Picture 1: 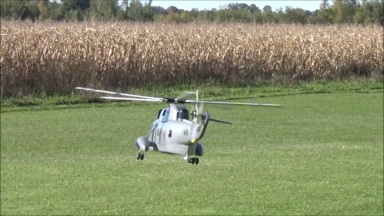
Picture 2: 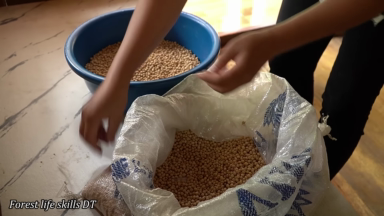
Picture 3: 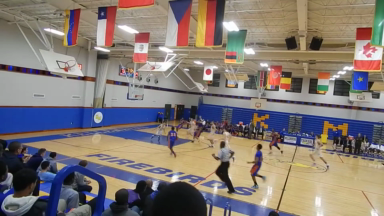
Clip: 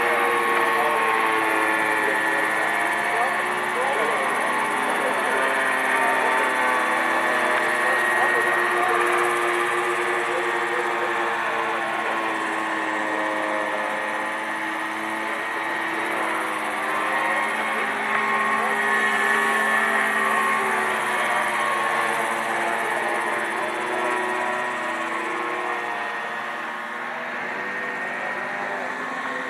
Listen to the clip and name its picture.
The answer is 1